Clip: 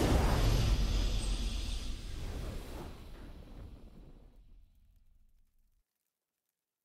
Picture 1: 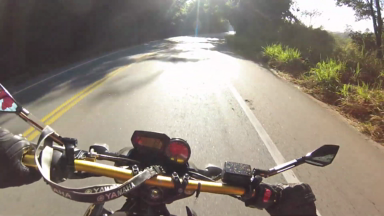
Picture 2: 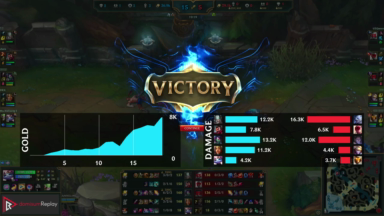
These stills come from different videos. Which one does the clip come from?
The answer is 2